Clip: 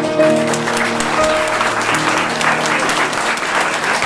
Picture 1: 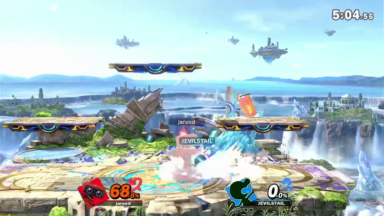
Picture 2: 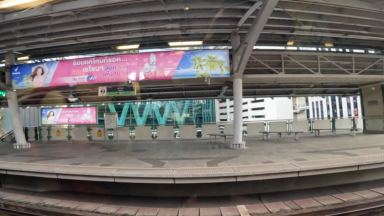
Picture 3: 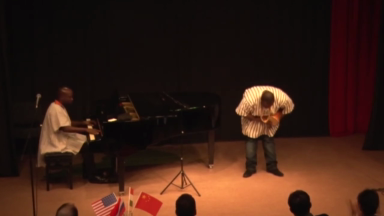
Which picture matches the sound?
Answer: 3